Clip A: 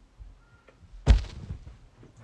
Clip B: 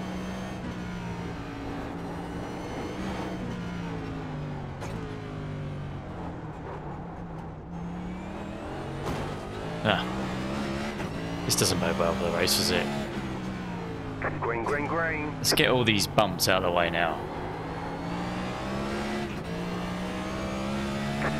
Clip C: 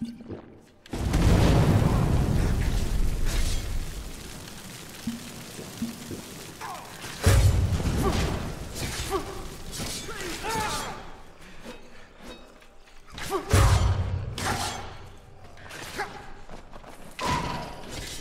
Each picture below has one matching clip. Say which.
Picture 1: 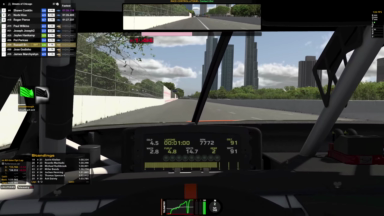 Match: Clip B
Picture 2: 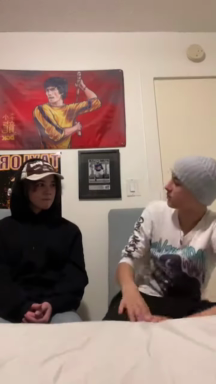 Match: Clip A